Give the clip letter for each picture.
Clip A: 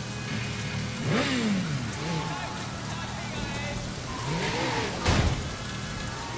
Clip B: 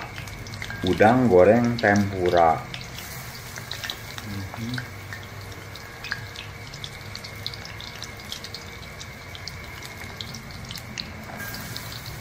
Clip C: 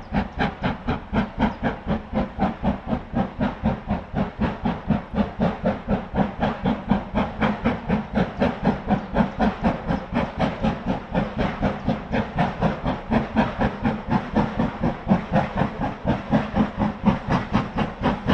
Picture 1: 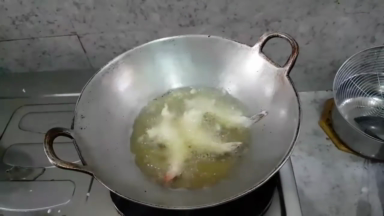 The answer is B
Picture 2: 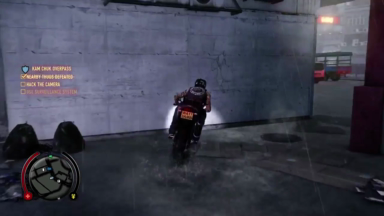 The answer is A